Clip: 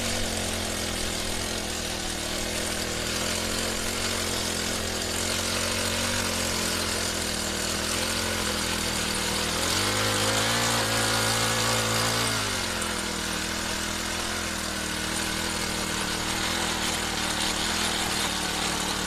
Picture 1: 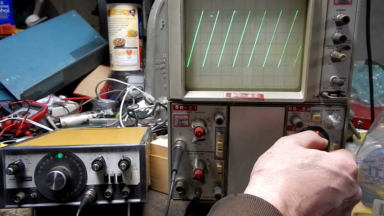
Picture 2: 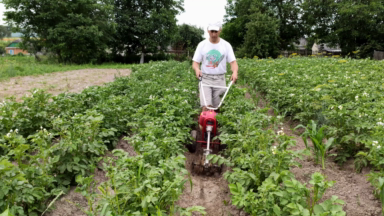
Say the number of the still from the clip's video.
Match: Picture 2